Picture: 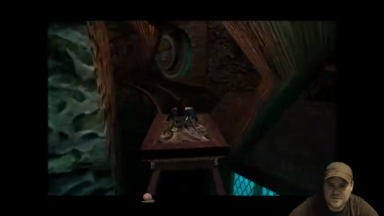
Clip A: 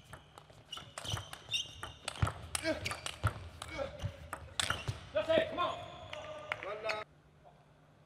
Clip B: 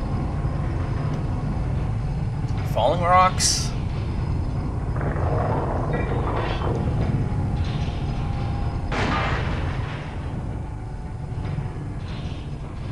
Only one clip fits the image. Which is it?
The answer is B